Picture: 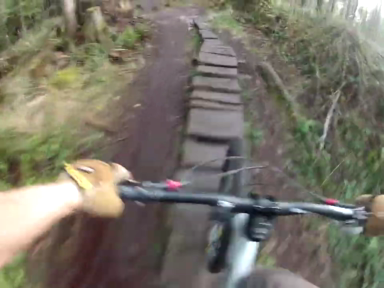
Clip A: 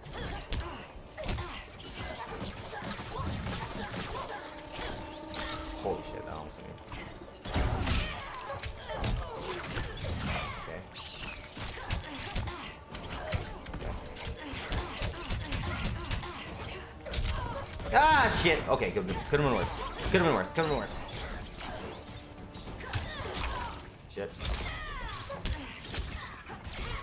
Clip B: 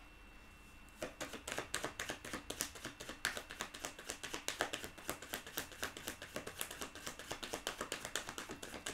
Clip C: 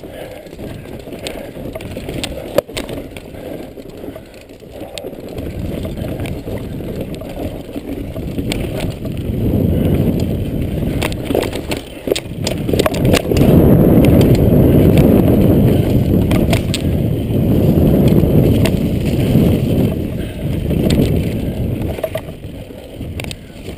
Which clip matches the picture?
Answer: C